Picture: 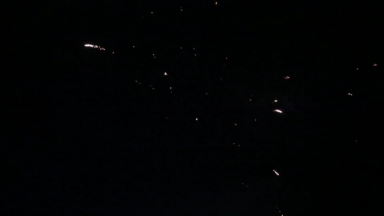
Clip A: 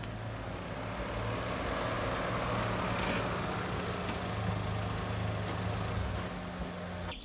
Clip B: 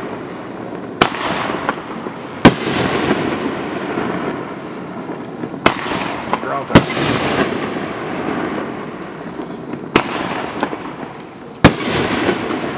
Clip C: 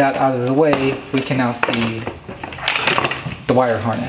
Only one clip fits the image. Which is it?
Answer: B